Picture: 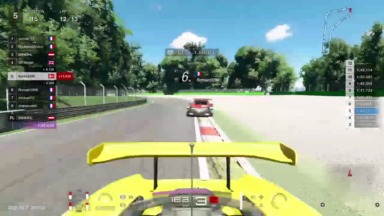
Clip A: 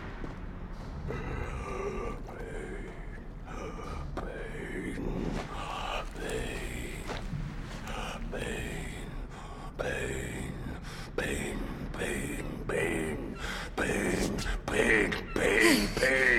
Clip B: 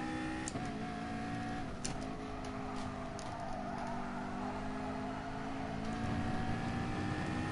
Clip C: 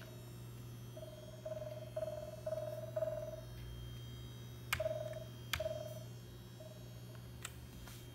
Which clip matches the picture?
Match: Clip B